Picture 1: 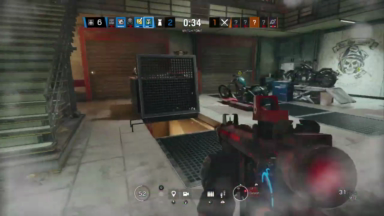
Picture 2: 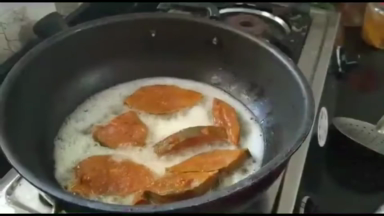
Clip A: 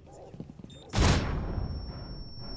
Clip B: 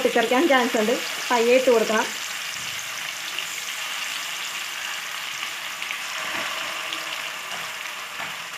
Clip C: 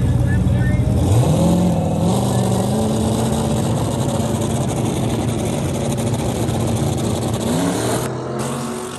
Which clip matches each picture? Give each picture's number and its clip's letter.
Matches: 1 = A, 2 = B